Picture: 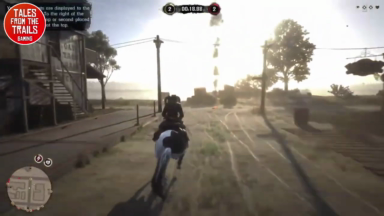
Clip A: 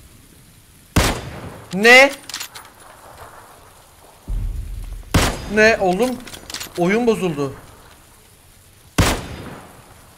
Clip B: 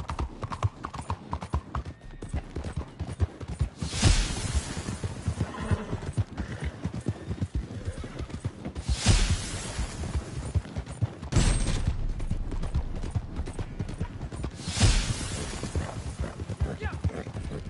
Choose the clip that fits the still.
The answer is B